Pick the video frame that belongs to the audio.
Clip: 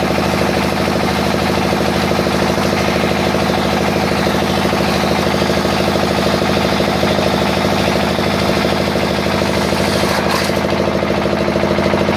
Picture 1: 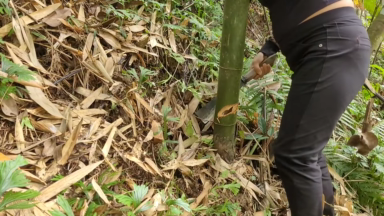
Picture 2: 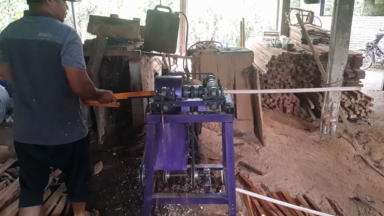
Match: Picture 2